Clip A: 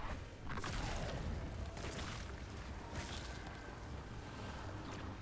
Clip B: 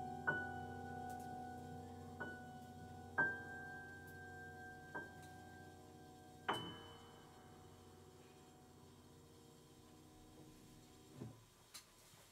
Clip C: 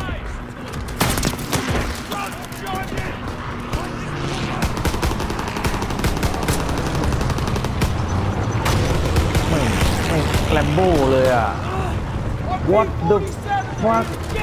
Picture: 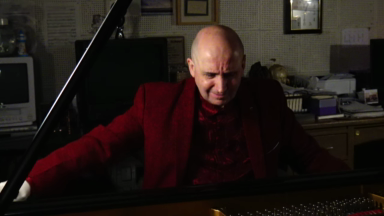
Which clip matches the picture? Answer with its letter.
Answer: B